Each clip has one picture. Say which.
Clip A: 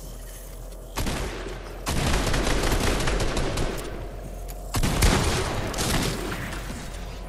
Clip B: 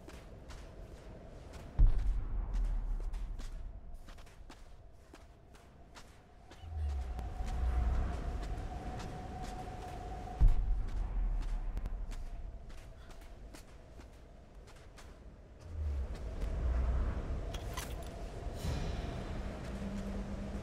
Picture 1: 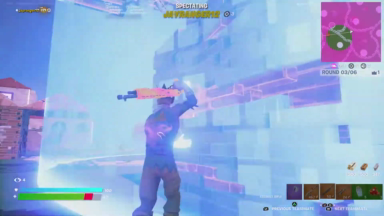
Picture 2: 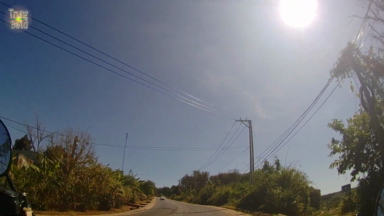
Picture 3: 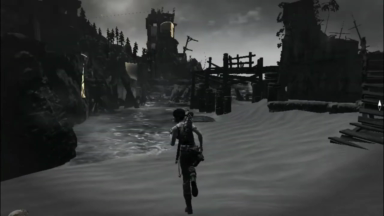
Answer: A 1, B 3